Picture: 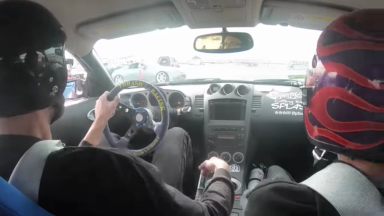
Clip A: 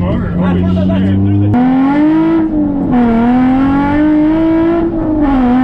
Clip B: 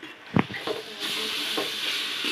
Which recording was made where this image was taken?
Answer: A